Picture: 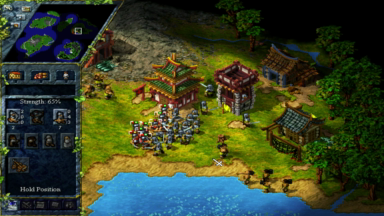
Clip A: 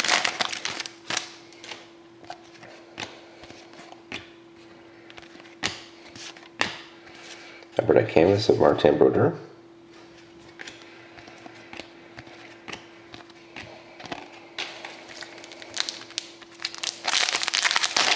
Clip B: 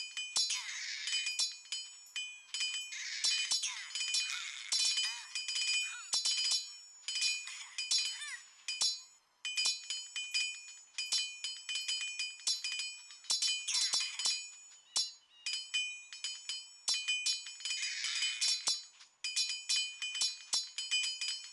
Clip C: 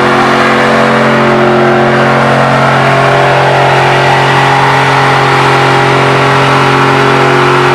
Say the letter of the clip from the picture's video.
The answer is B